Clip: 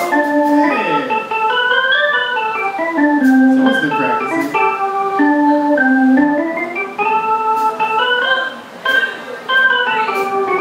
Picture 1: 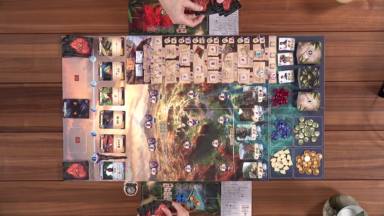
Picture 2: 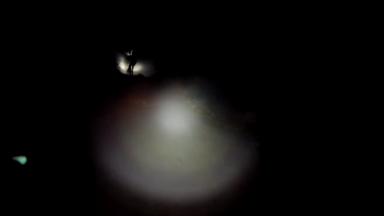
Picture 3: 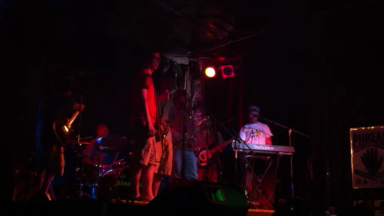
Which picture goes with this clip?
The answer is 3